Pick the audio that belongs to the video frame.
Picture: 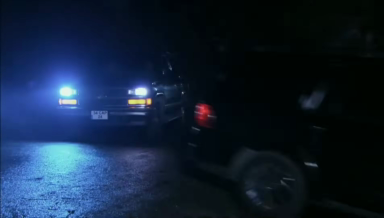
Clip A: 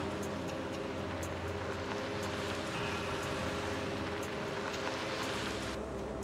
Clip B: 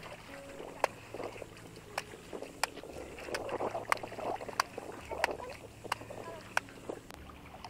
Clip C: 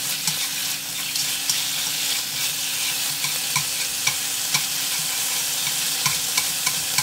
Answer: A